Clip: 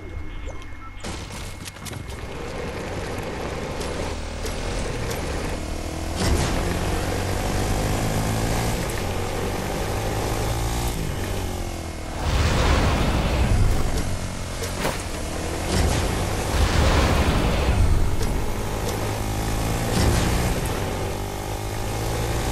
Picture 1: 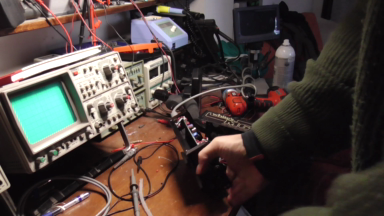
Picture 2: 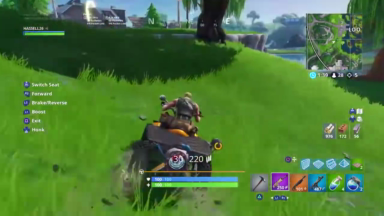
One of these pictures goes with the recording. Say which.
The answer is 2